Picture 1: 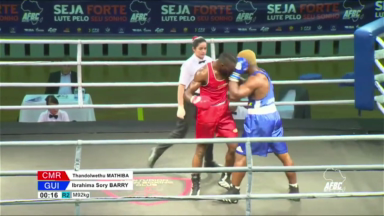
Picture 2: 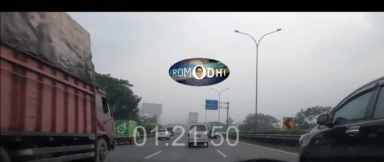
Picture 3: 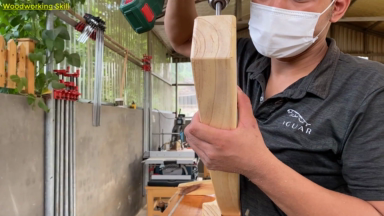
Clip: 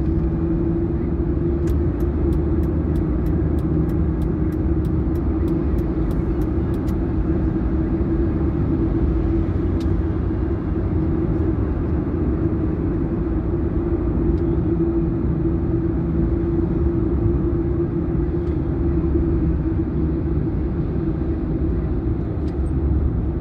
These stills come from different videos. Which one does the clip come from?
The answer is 2